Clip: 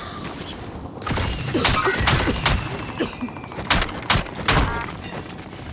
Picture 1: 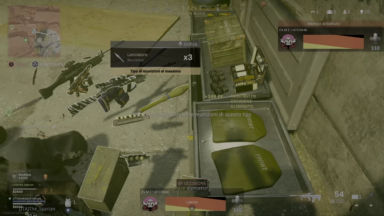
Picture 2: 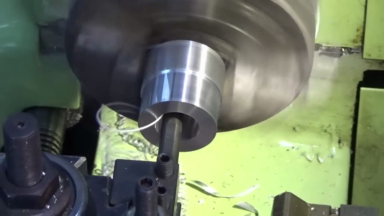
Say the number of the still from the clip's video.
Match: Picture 1